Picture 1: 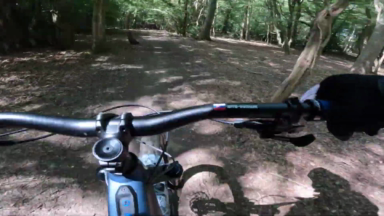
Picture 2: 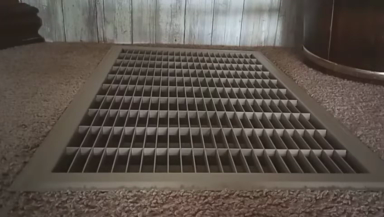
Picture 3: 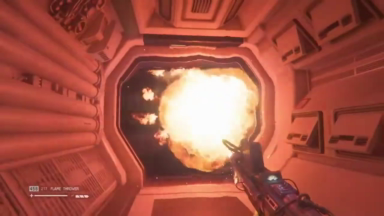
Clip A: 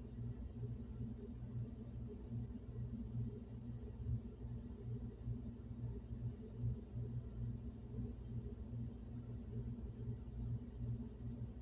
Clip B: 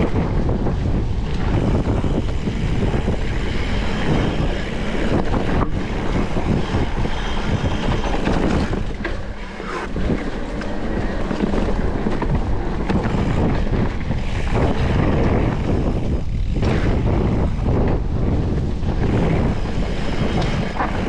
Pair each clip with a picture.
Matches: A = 2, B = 1